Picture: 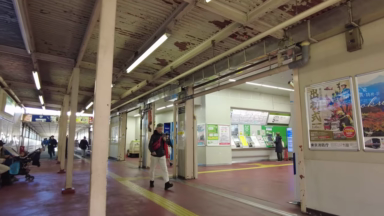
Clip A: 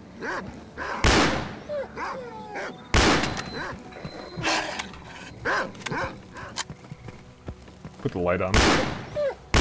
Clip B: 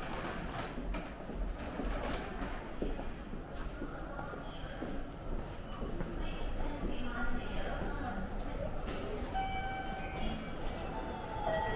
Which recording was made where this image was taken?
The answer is B